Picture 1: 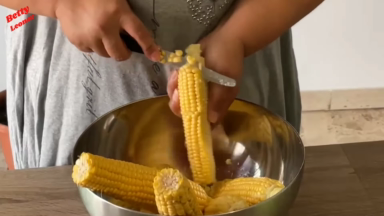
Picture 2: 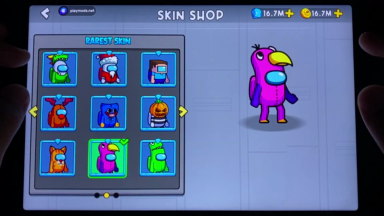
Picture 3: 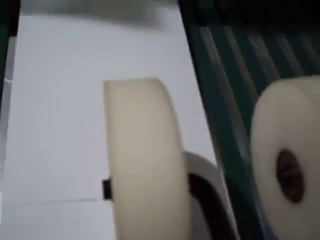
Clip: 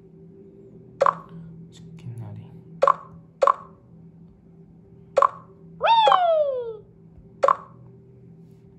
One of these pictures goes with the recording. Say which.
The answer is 2